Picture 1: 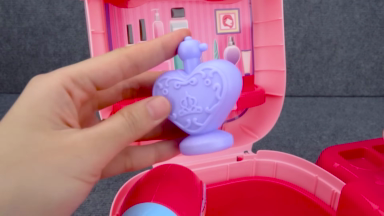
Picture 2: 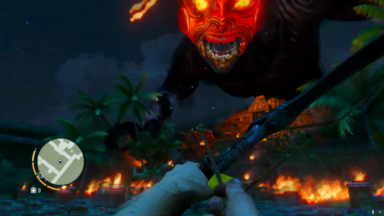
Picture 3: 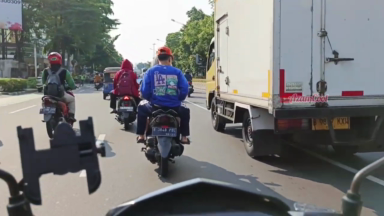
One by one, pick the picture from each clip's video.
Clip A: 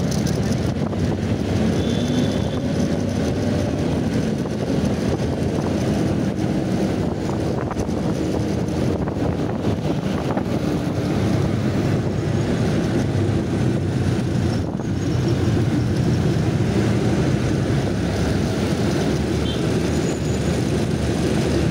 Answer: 3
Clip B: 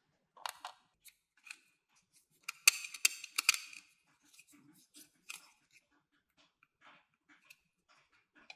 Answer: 1